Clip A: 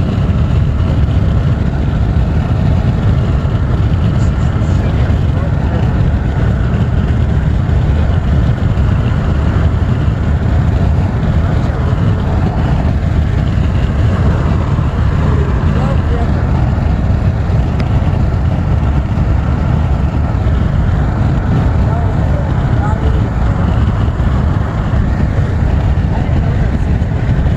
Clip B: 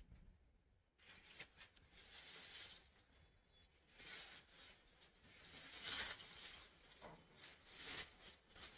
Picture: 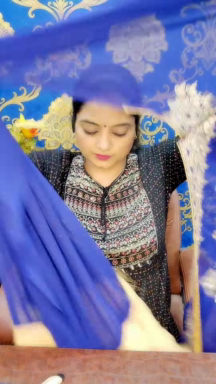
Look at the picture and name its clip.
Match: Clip B